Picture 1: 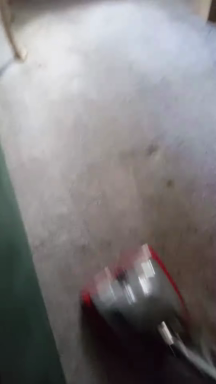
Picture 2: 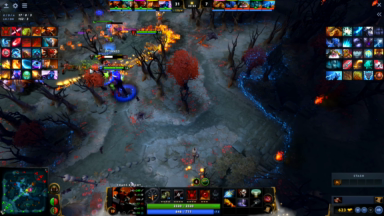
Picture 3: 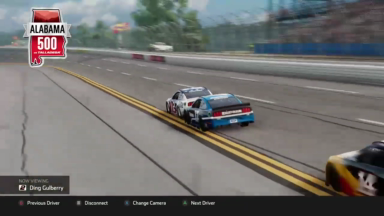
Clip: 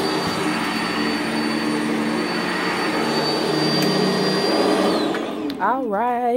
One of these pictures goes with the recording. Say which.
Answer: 1